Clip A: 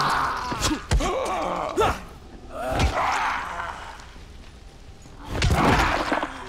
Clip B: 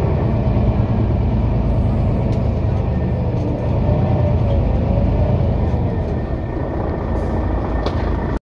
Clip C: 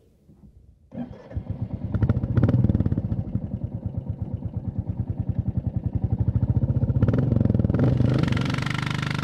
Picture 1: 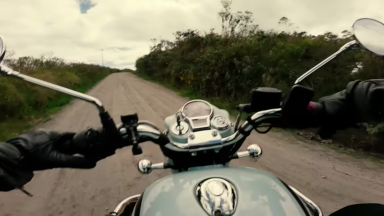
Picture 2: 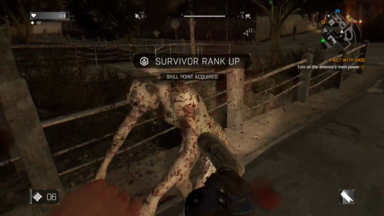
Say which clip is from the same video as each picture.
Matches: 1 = C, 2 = A